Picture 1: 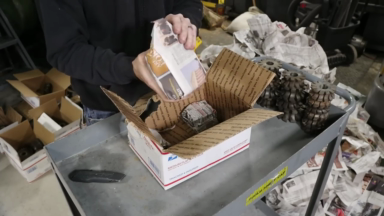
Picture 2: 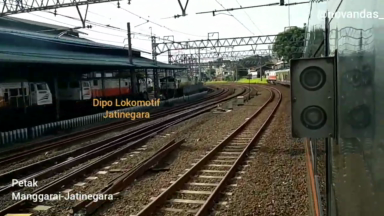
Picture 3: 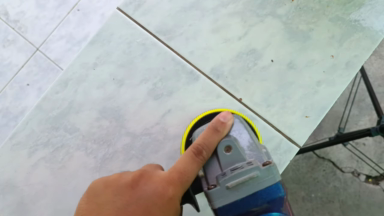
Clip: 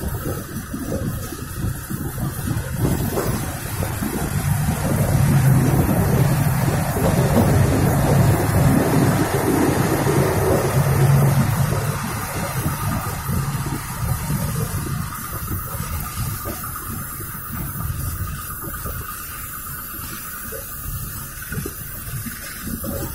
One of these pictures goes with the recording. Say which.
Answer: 2